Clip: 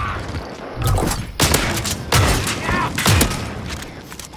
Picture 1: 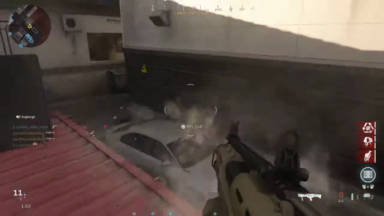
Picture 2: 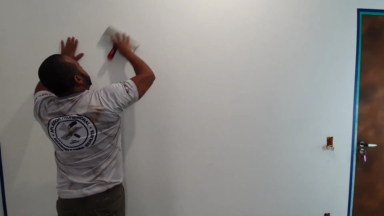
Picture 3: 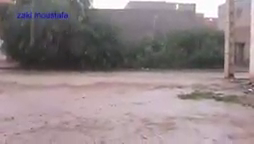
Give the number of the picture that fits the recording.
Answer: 1